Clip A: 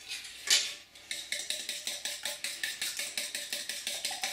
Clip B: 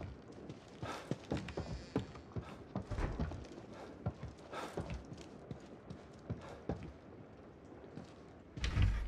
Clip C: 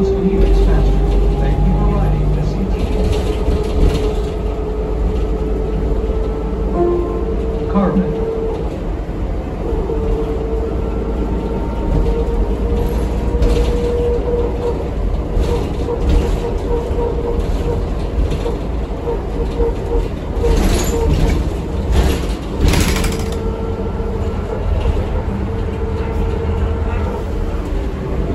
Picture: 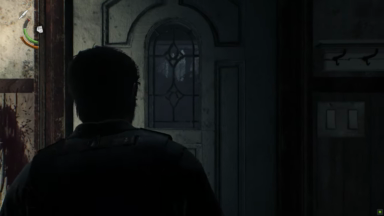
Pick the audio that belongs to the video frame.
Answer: B